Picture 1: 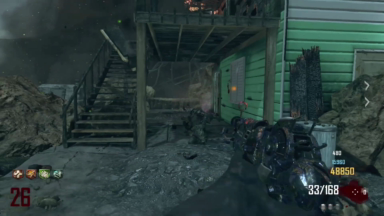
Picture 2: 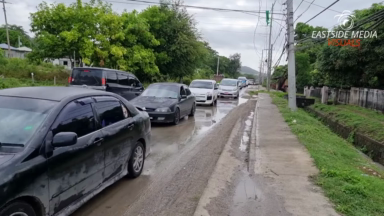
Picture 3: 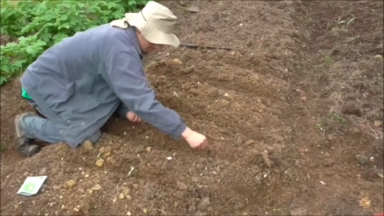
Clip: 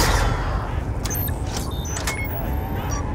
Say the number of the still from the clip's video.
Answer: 1